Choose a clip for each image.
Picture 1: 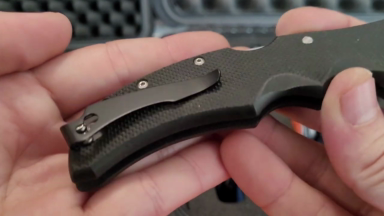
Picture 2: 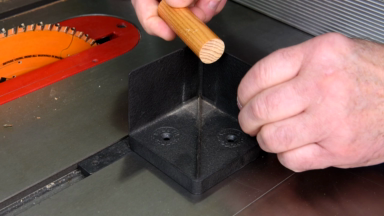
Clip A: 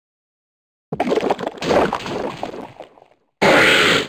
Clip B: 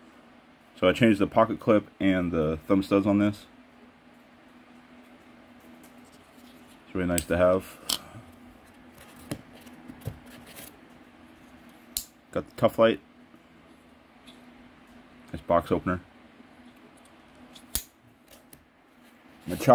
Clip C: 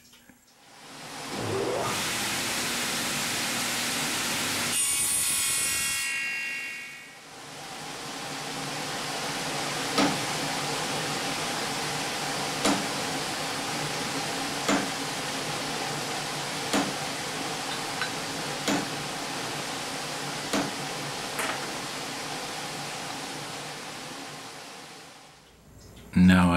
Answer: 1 B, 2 C